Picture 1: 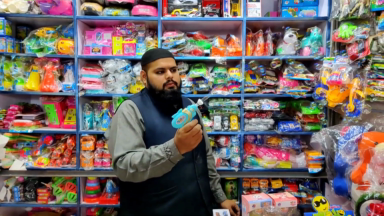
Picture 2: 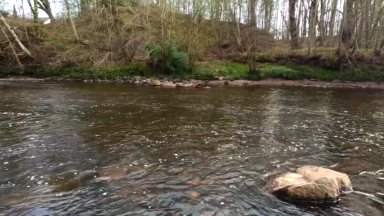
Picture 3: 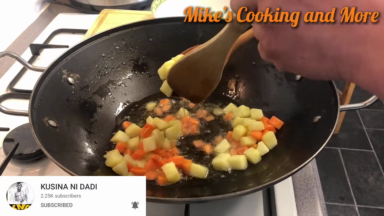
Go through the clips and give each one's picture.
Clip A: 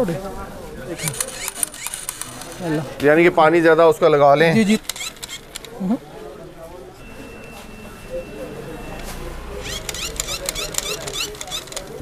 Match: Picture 1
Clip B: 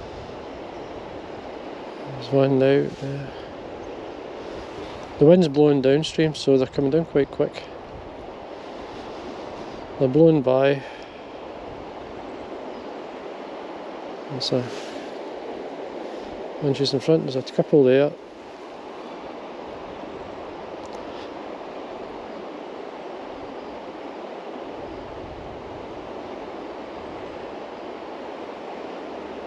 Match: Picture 2